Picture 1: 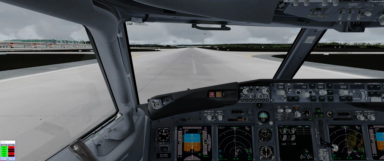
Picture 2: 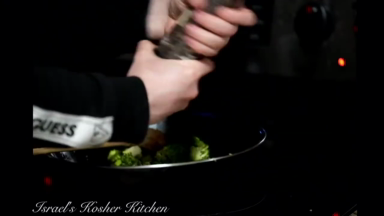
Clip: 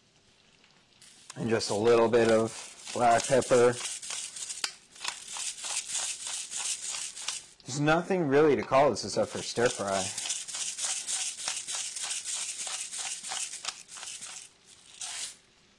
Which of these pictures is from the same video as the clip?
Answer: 2